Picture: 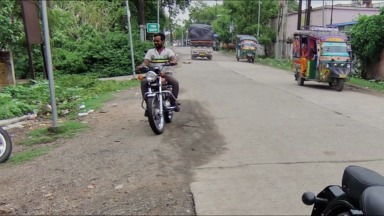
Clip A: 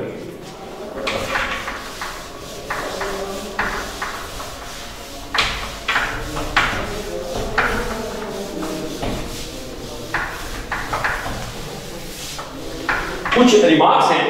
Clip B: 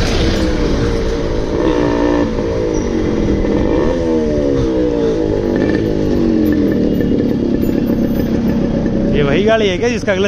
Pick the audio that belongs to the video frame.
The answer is B